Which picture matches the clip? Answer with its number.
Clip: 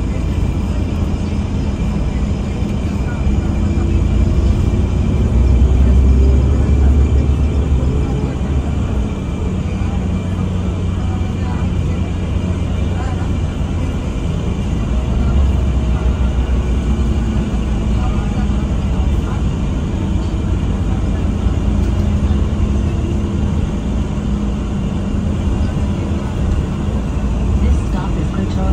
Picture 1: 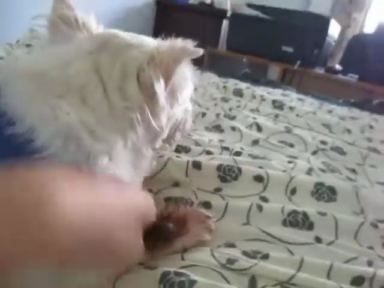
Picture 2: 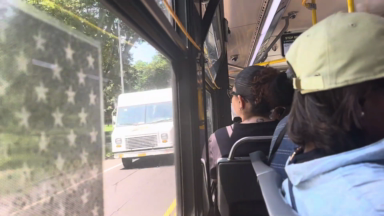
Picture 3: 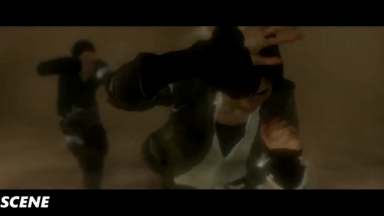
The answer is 2